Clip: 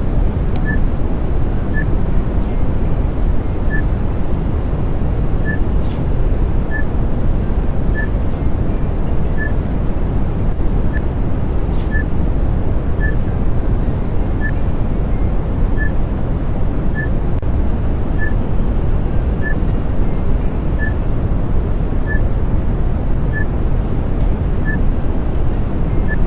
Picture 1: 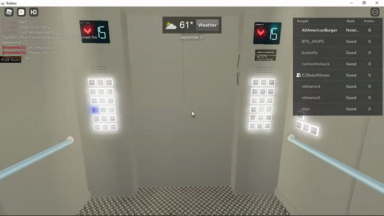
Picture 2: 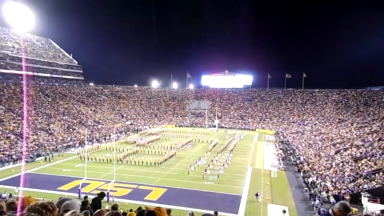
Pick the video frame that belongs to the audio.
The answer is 1